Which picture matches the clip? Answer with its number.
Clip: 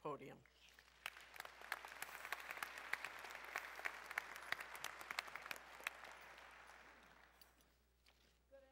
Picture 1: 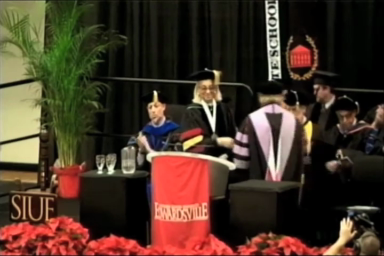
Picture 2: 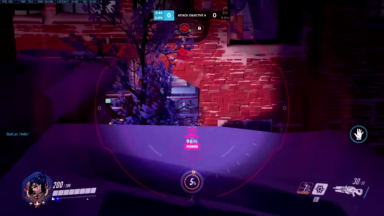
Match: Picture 1